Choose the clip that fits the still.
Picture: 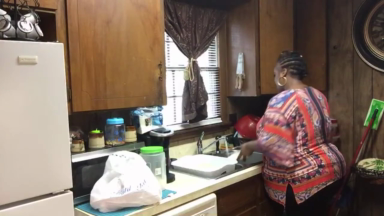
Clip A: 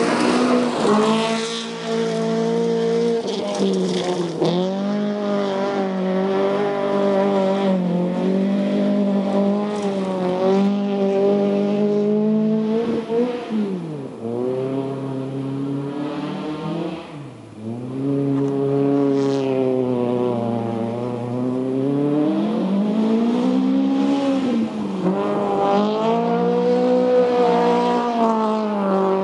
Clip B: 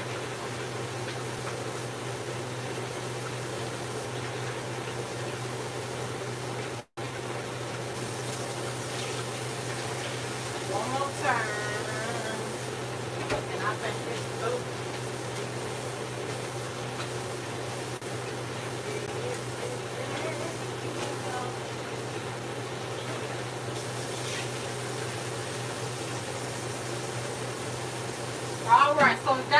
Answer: B